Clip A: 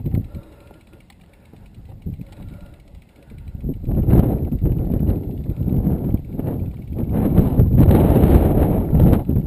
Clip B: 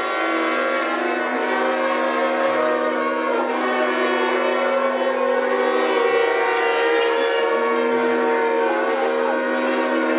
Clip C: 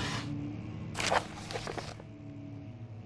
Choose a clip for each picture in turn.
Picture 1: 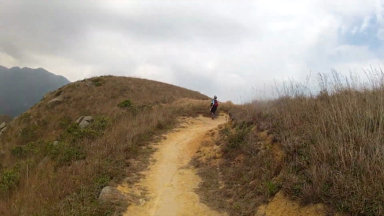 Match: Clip A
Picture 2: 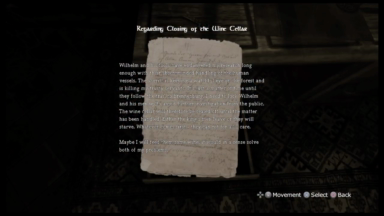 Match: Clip C